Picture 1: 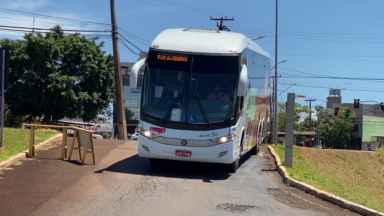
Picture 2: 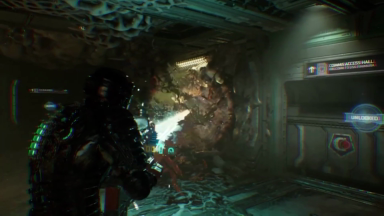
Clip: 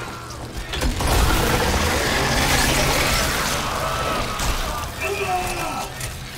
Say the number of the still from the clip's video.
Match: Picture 2